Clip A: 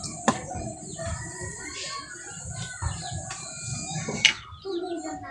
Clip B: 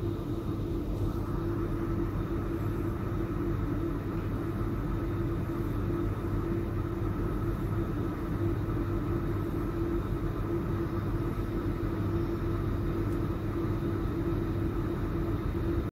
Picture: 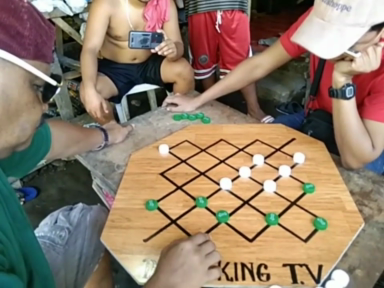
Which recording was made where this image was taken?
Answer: A